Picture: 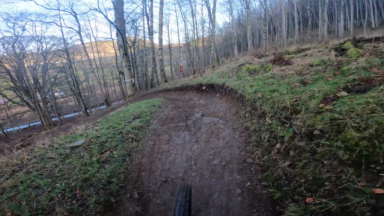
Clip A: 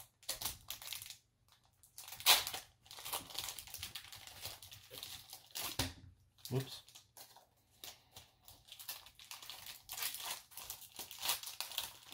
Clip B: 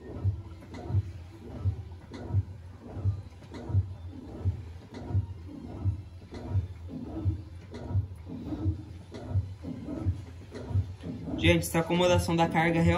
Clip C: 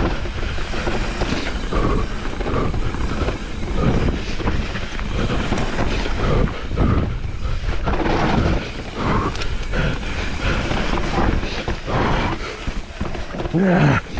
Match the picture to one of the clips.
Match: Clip C